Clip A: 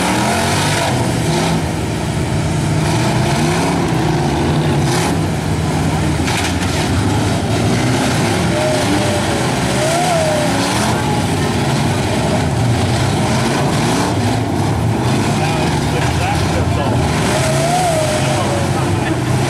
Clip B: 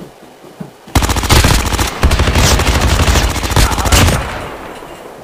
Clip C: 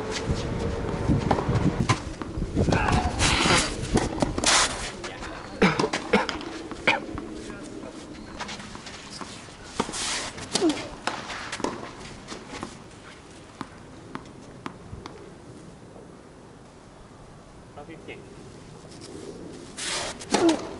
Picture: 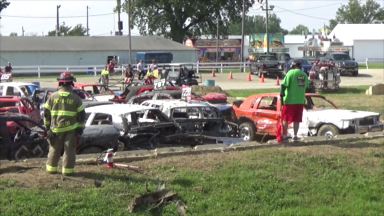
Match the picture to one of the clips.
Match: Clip A